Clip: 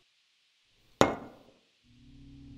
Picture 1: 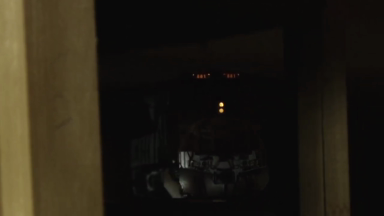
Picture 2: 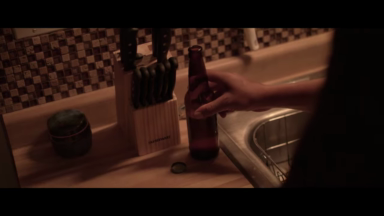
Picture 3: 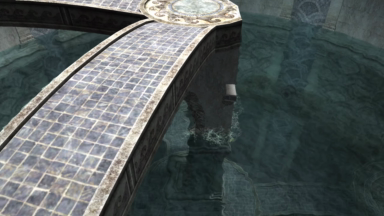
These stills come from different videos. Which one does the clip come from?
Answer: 2